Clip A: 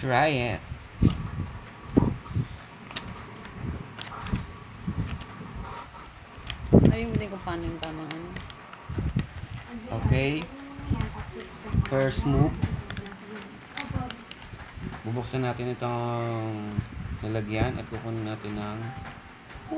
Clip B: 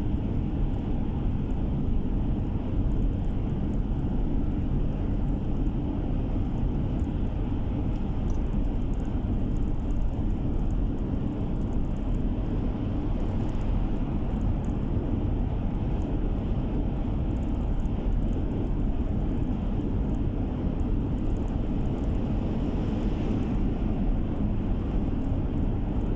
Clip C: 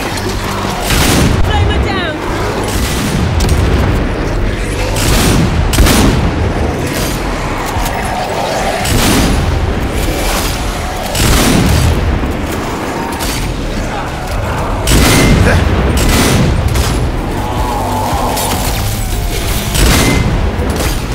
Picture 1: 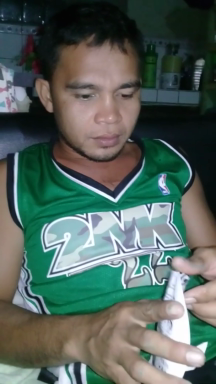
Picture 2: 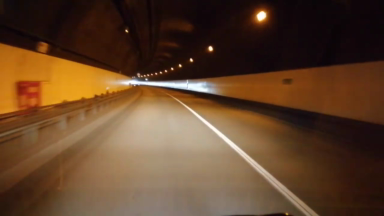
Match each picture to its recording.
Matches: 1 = A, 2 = B